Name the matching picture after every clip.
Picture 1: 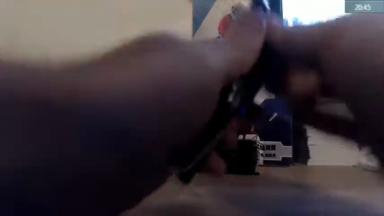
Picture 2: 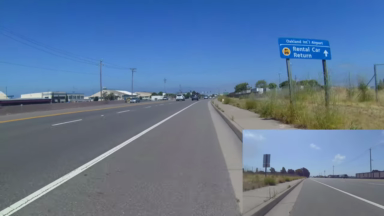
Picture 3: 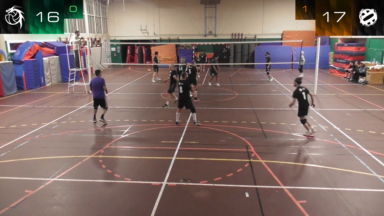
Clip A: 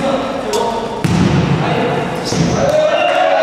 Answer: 3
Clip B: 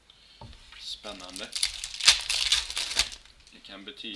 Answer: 1